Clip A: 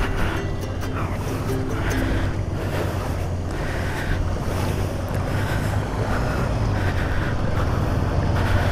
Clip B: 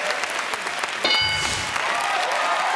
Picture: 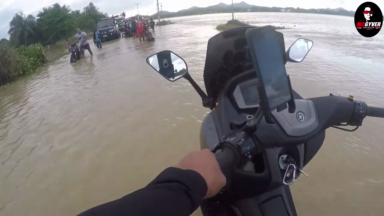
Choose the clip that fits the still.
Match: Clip A